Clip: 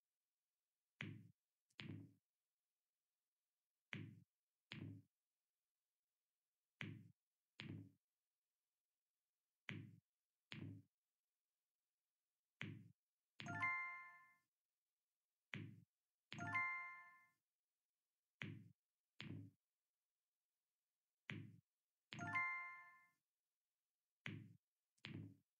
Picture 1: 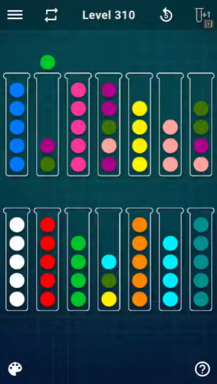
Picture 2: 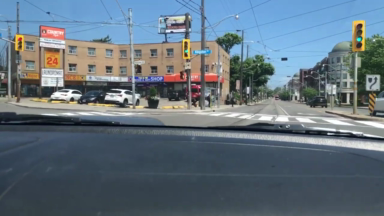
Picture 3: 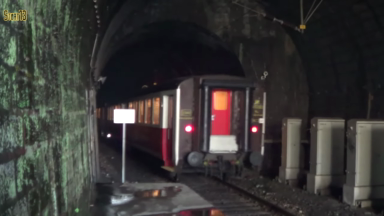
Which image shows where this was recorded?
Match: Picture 1